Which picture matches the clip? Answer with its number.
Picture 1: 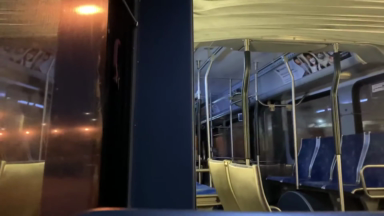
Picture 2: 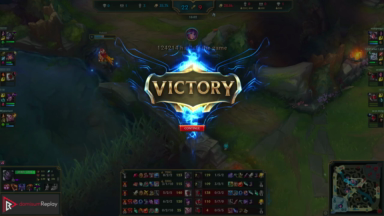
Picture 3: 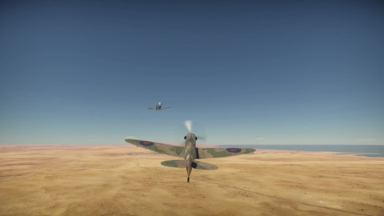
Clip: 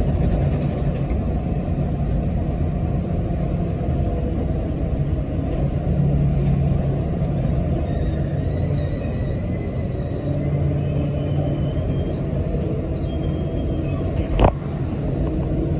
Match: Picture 1